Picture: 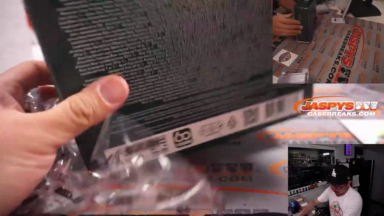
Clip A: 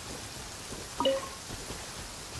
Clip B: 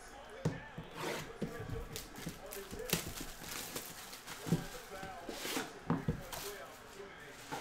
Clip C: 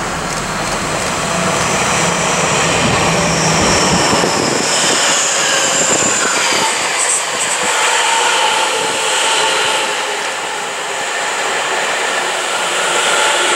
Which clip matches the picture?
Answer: B